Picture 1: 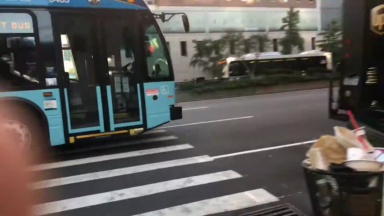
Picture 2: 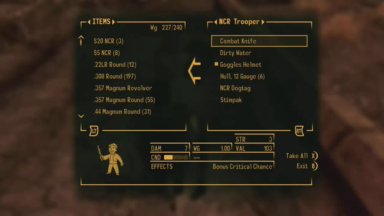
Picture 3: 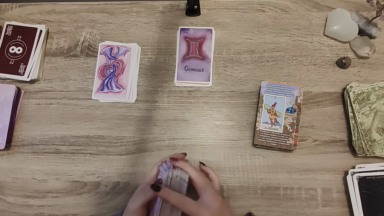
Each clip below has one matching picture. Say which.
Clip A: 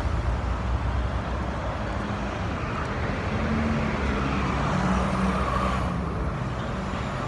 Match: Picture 1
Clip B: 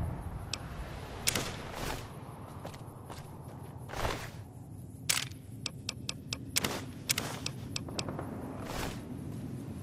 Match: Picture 2